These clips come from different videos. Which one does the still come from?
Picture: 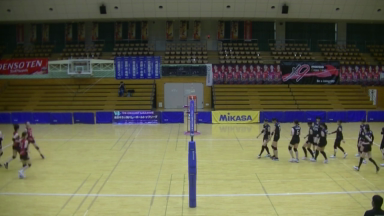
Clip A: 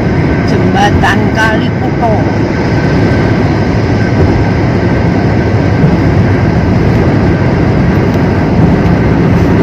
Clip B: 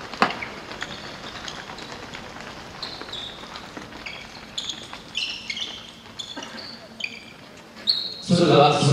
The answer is B